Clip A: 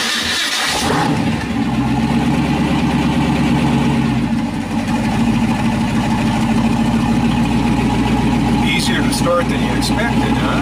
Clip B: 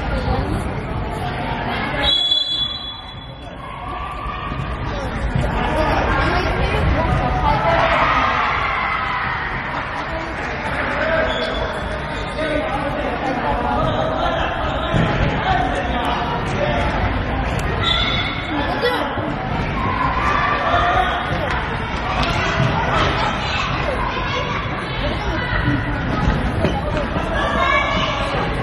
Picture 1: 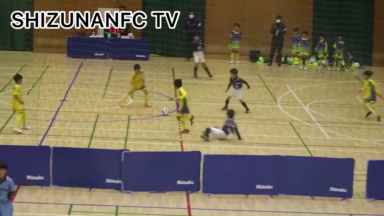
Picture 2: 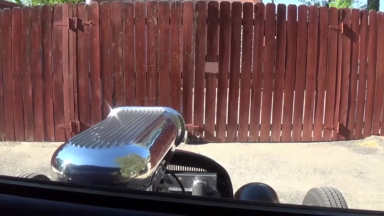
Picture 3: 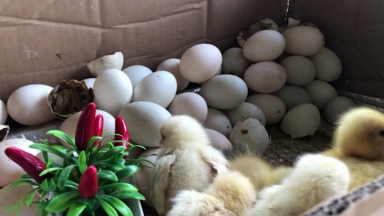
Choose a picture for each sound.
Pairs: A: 2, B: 1